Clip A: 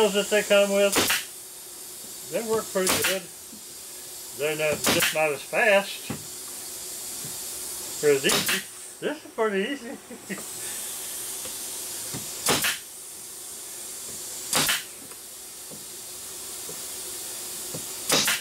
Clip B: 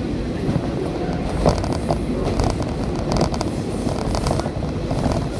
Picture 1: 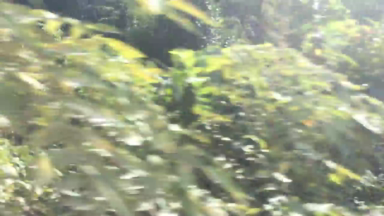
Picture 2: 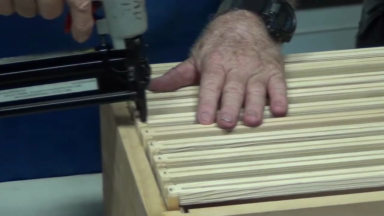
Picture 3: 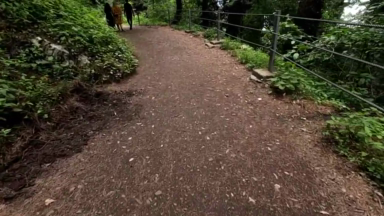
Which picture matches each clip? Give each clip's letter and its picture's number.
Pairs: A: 2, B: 1